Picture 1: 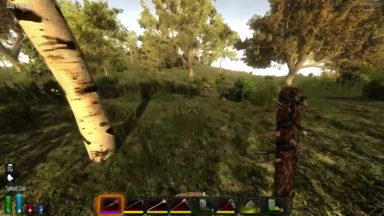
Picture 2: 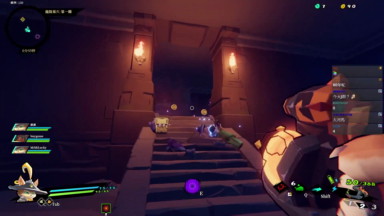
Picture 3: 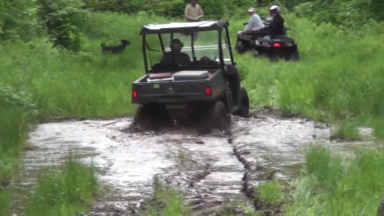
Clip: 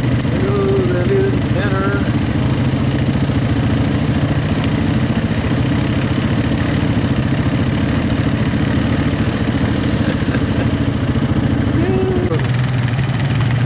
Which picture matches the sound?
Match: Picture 3